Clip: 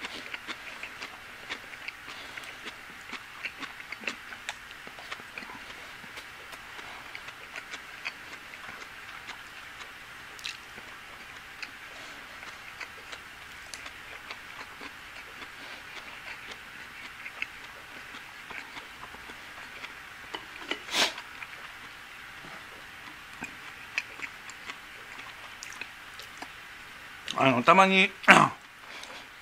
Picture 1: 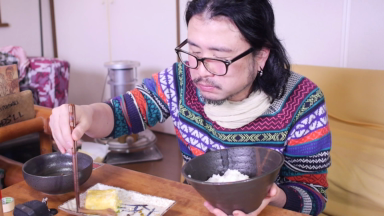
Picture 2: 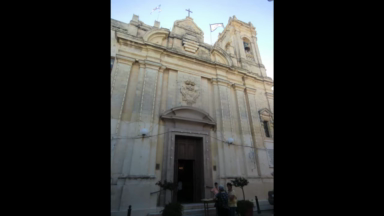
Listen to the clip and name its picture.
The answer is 1